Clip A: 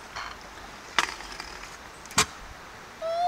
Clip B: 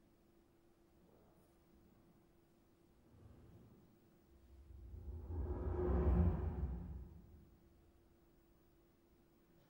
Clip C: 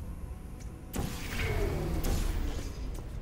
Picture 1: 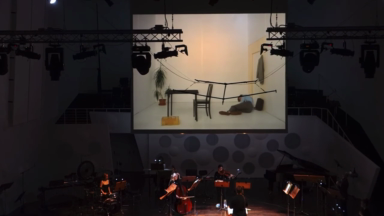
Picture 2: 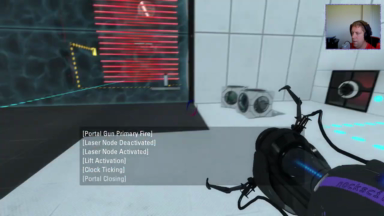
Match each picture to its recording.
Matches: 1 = B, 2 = C